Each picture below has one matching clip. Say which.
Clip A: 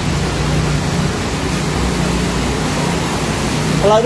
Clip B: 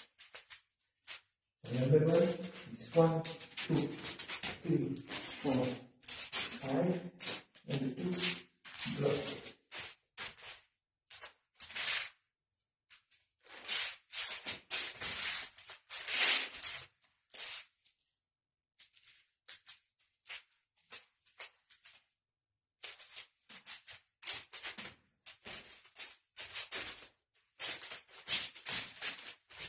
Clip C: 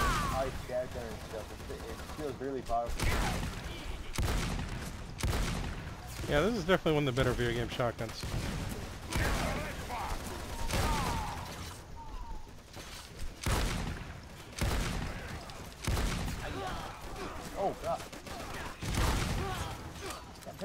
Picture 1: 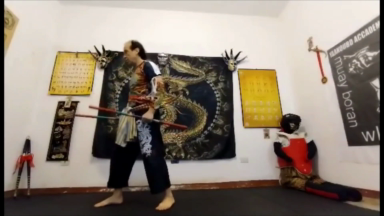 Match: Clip B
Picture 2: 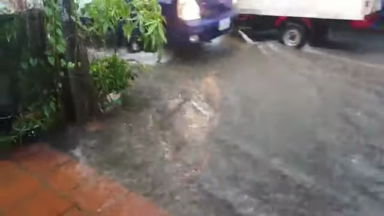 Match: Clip A